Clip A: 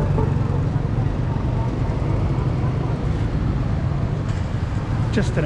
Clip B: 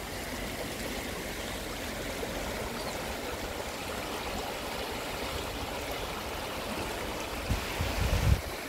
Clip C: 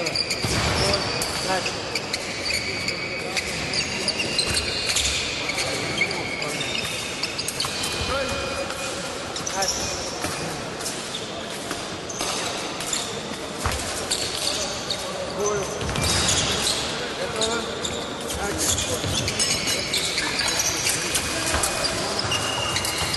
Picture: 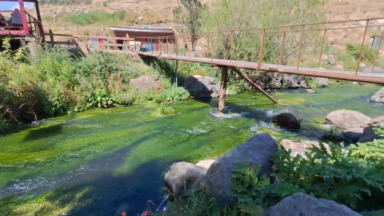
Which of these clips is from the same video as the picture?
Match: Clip B